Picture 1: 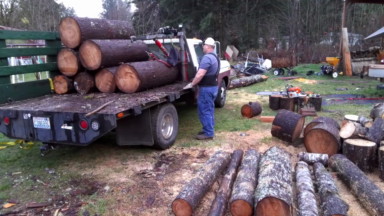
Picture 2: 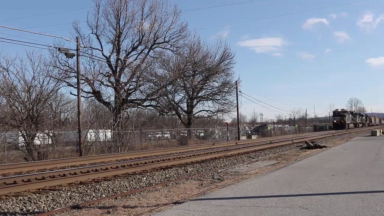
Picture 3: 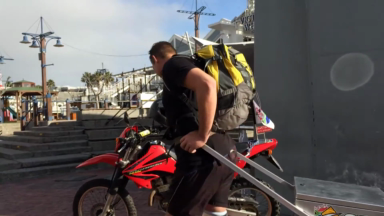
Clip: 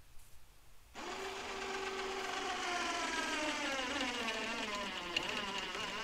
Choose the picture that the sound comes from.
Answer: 1